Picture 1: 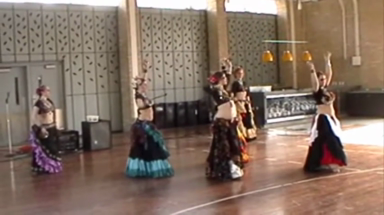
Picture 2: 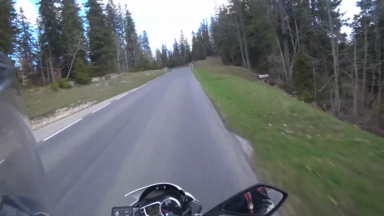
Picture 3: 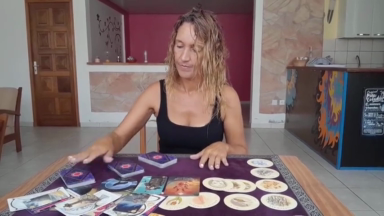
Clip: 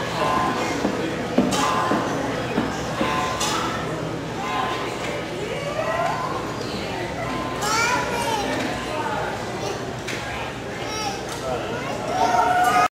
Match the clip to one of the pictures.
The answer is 1